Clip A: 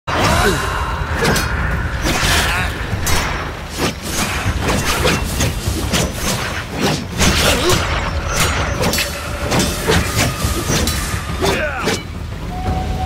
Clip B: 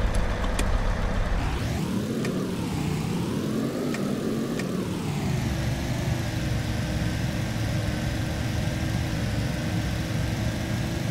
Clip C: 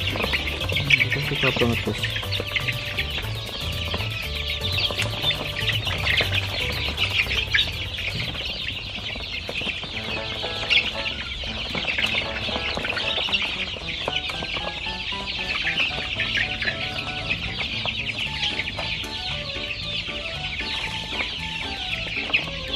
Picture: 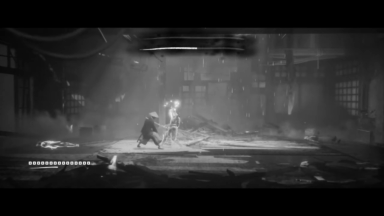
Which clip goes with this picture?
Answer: A